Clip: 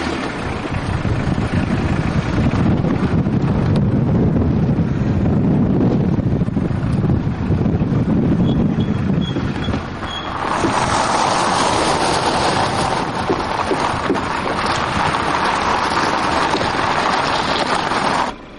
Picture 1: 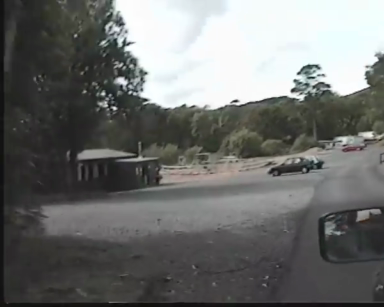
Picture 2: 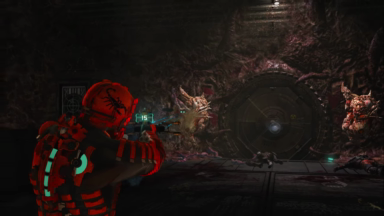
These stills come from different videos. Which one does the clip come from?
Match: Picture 1